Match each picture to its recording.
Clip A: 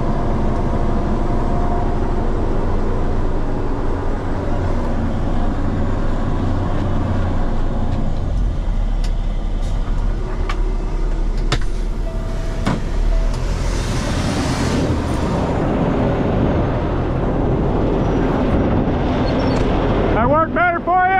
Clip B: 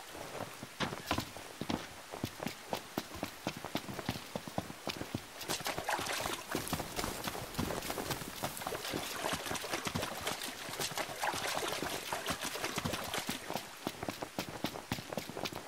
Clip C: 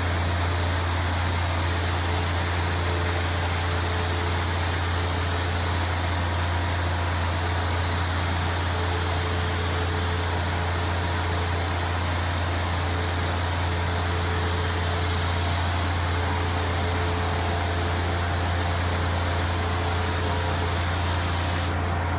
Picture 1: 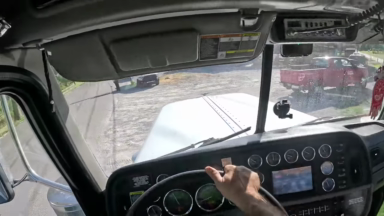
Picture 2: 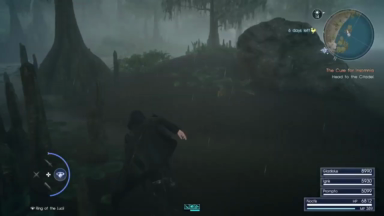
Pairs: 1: A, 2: B